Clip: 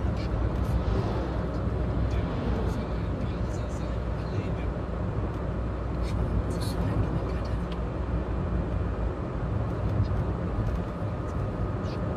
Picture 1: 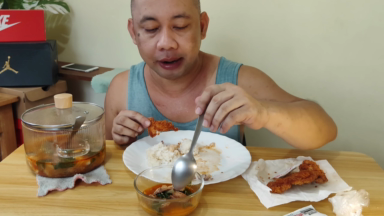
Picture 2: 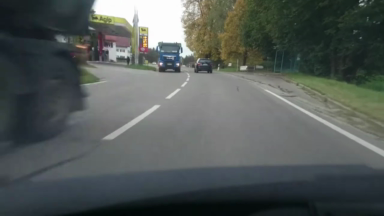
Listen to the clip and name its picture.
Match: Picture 2